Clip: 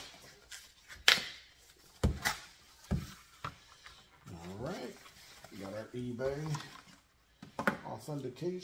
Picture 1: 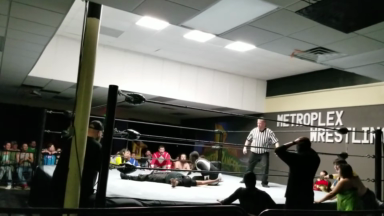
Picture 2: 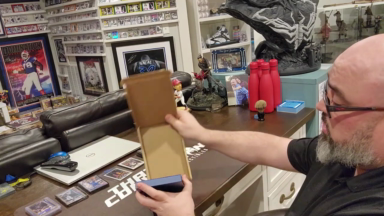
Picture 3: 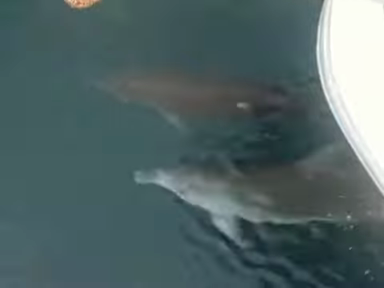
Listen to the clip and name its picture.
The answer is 2